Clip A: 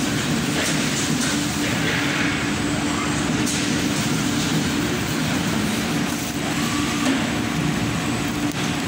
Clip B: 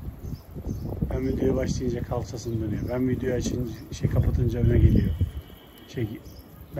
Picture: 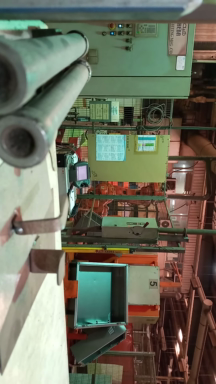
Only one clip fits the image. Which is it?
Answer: A